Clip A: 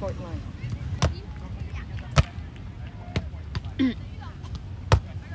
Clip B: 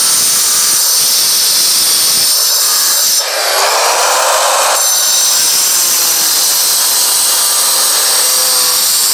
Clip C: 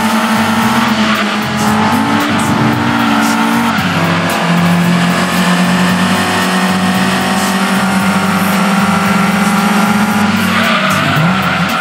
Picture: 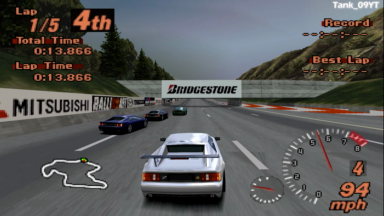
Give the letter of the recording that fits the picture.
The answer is C